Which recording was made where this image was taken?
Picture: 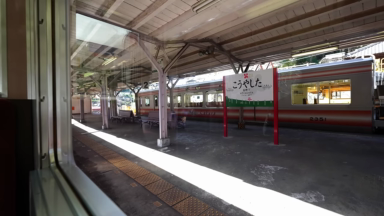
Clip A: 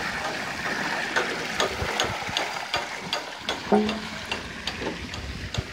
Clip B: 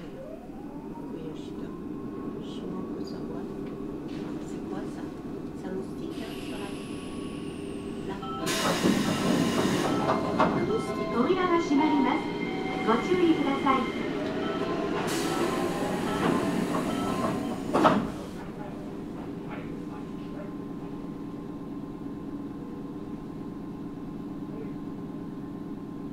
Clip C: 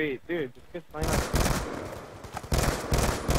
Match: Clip B